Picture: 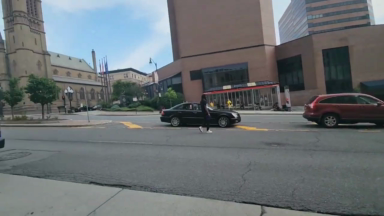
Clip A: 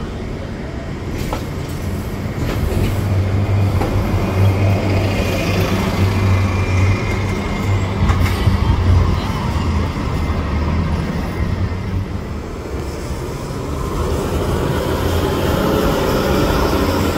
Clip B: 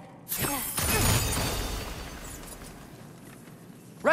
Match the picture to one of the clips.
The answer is A